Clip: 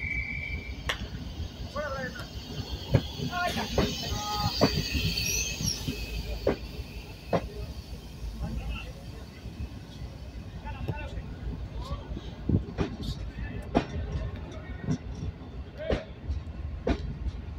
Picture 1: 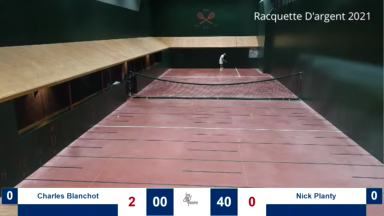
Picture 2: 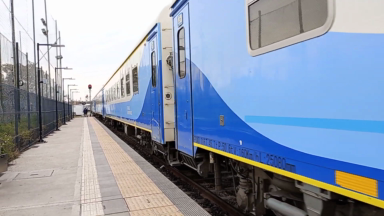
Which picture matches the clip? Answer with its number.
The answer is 2